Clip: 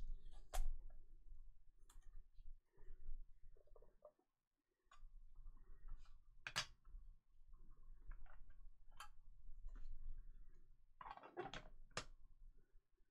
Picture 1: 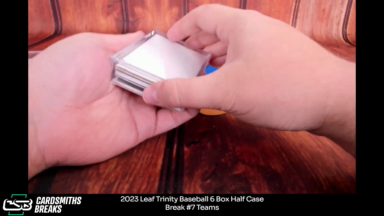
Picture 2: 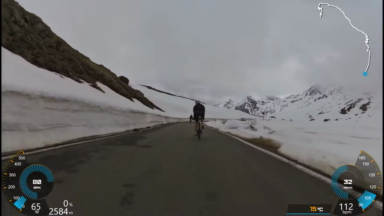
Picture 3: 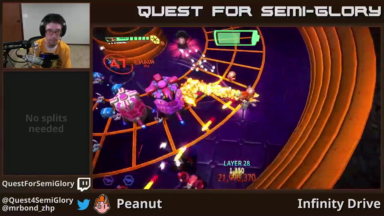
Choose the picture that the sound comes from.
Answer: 1